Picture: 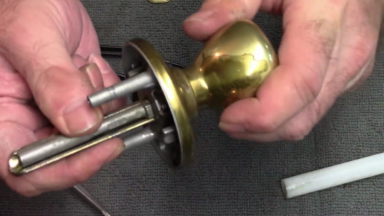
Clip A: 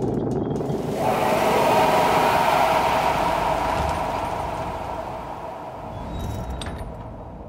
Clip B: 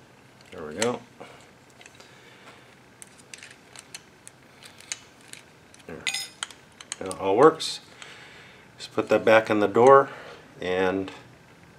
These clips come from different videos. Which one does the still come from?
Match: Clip B